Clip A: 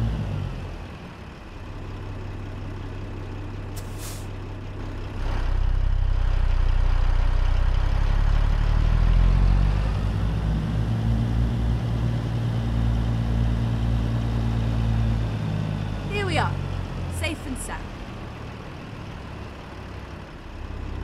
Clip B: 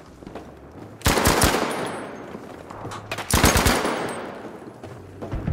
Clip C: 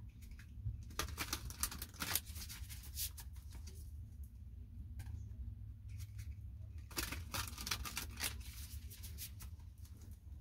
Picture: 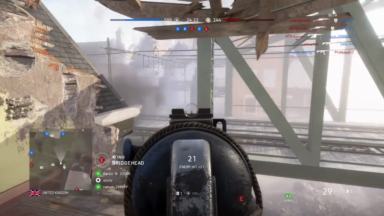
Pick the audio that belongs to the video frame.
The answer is B